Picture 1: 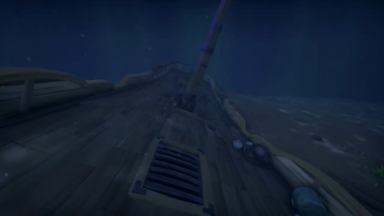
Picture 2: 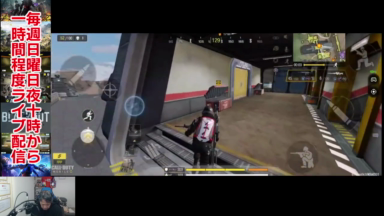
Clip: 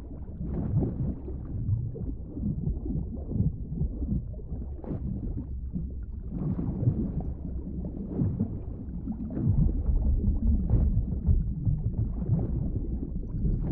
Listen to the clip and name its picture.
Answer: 1